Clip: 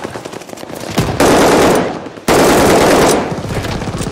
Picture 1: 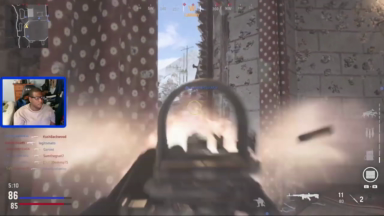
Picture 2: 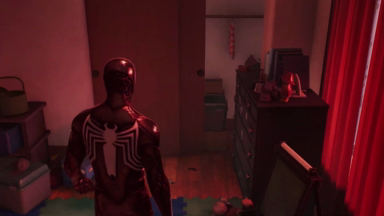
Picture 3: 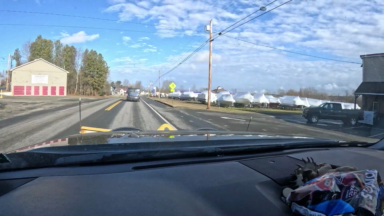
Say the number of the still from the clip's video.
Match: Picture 1